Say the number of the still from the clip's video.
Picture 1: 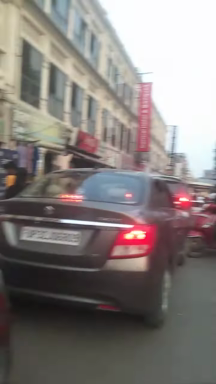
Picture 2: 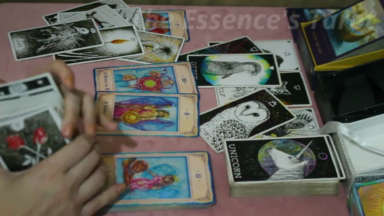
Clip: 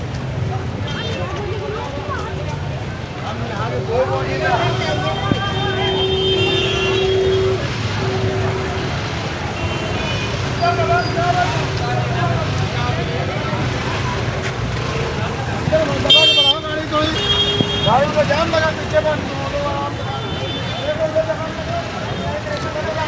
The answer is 1